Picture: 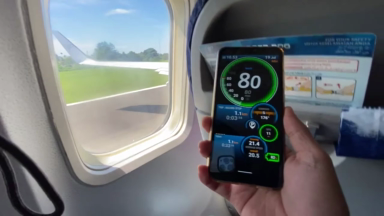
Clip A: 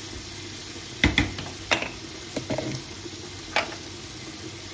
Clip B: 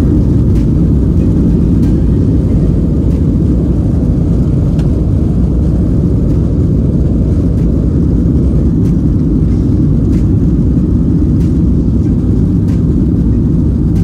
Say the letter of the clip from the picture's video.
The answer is B